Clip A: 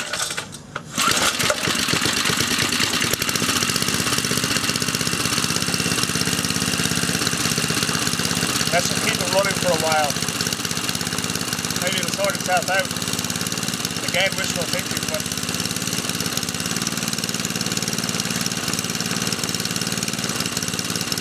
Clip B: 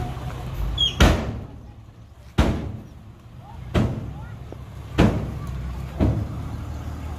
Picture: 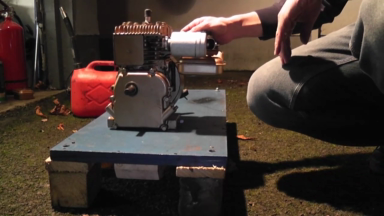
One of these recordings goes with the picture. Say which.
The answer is A